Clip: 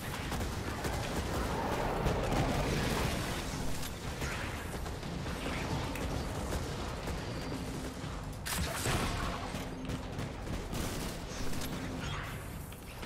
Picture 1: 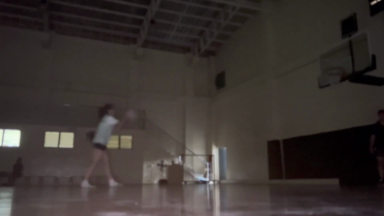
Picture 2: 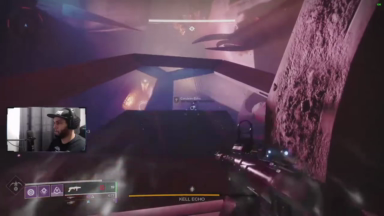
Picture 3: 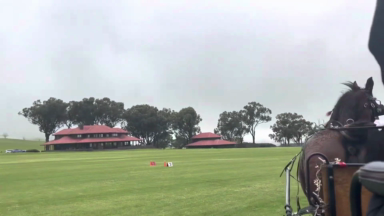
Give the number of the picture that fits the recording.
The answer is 2